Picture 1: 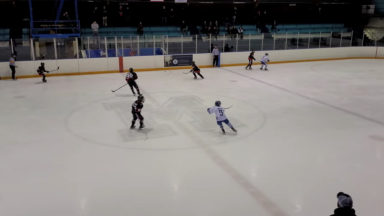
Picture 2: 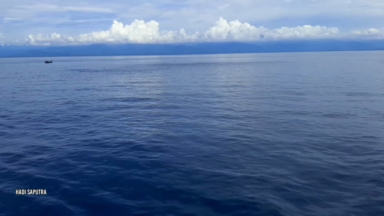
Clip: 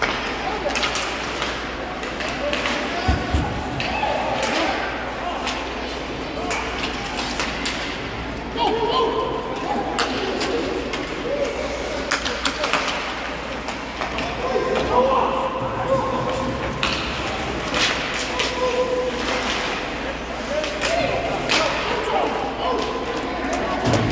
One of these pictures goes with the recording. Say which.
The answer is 1